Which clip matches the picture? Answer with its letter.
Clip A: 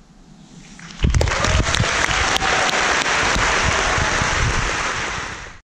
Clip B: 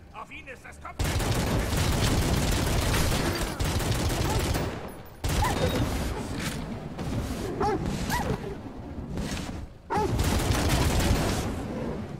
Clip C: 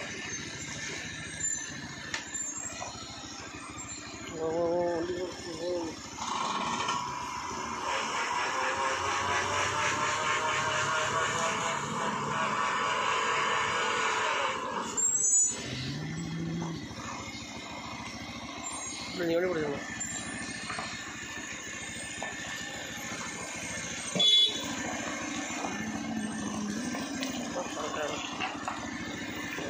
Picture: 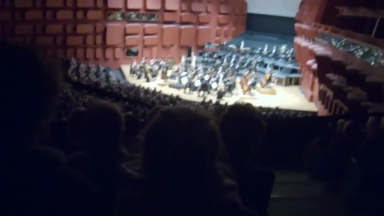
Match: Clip A